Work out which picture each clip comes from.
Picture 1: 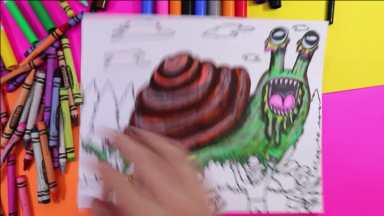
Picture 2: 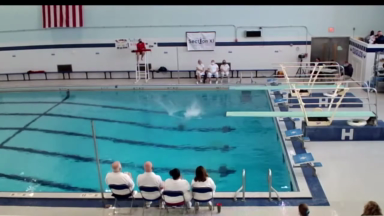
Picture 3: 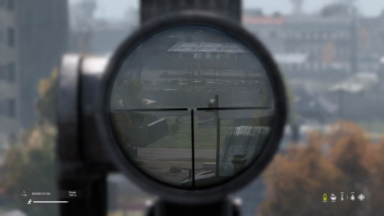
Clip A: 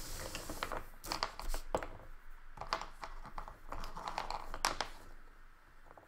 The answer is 1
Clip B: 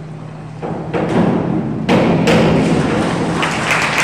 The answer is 2